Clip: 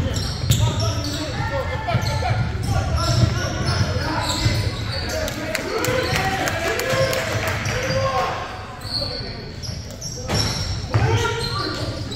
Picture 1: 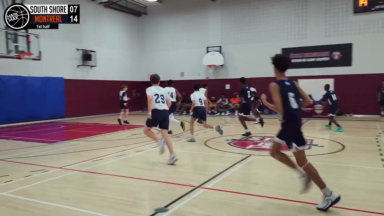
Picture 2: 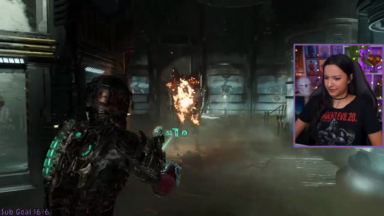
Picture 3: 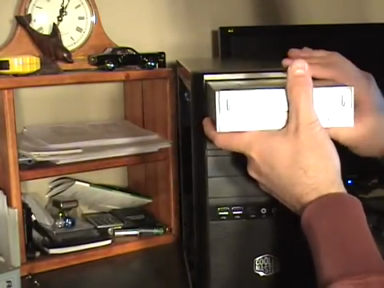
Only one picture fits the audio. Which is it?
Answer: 1